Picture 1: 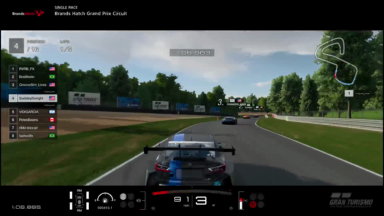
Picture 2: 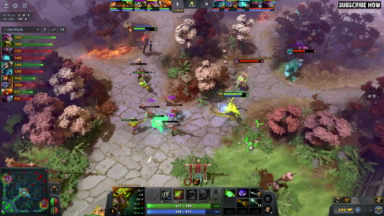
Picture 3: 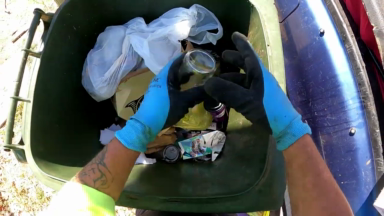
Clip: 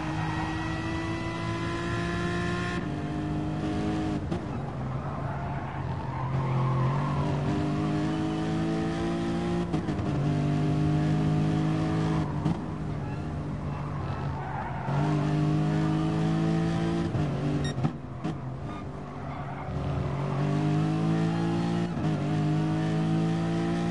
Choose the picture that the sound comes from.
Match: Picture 1